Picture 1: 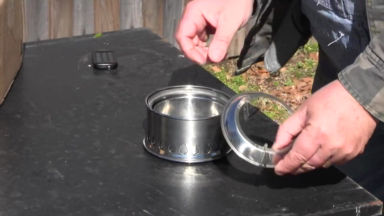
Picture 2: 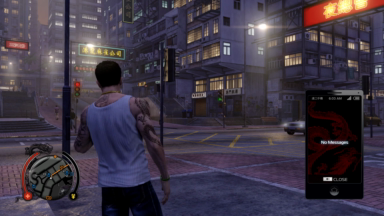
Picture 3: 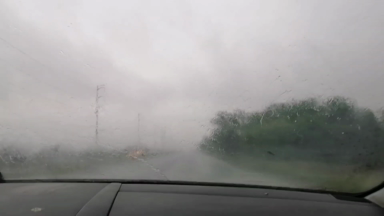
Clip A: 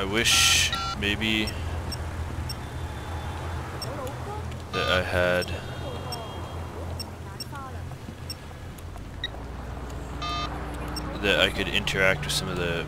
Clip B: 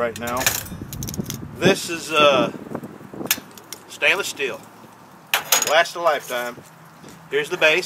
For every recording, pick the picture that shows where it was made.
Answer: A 2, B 1